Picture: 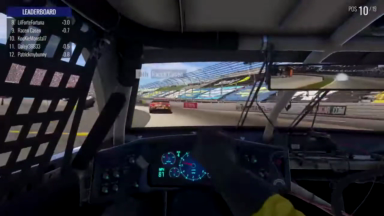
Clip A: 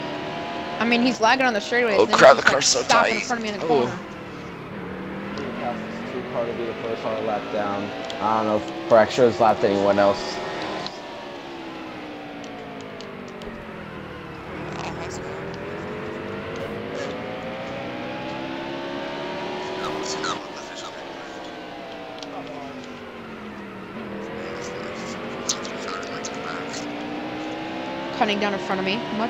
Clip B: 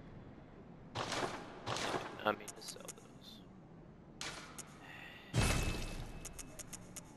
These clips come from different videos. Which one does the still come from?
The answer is A